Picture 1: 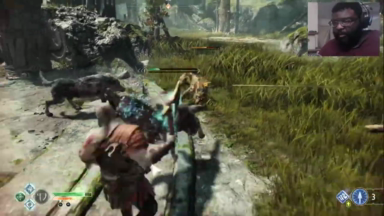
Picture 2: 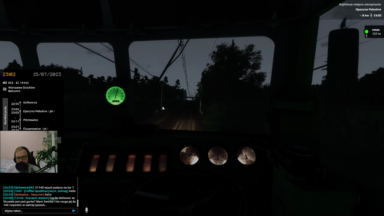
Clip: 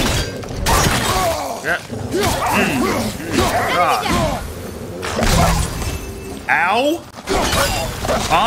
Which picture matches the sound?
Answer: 1